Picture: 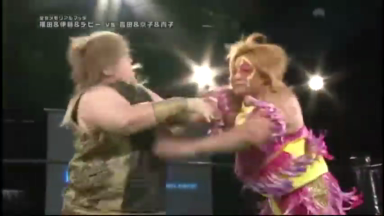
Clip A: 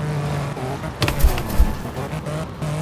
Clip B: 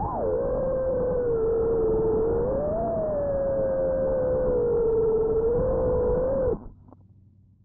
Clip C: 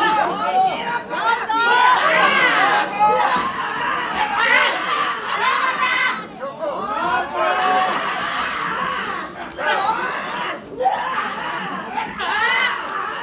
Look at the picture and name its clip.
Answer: C